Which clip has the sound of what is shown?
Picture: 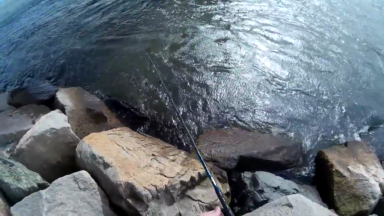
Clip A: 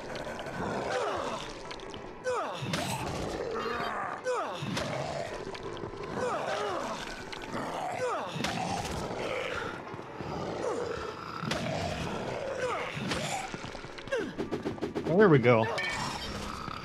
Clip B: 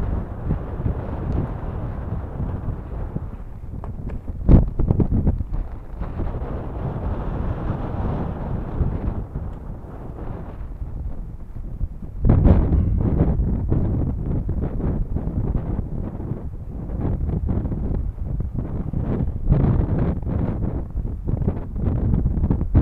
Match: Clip B